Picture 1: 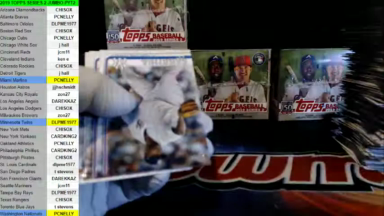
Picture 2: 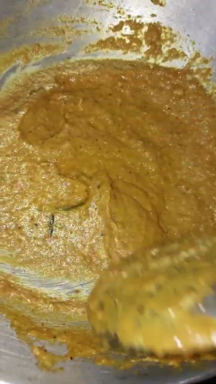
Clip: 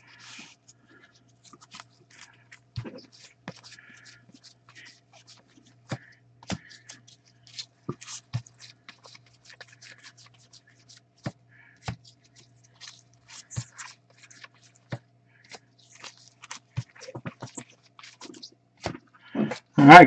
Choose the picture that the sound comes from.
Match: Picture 1